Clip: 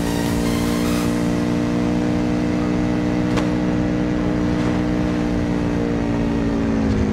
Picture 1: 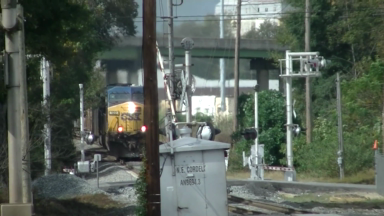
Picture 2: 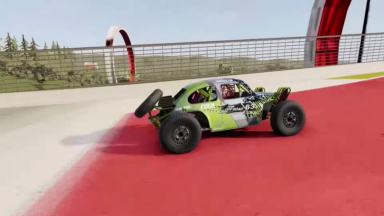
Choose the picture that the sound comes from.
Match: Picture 2